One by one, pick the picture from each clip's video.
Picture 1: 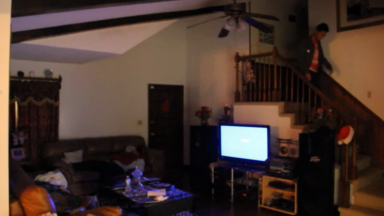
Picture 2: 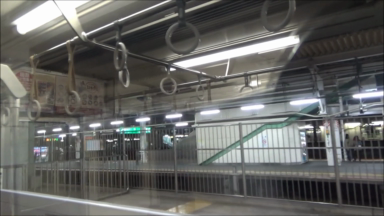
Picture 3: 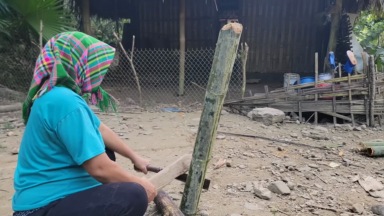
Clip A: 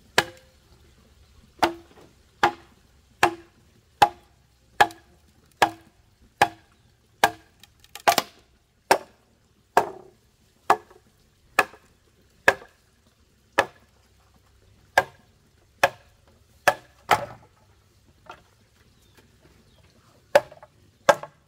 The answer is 3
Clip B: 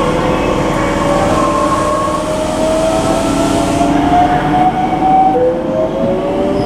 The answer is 2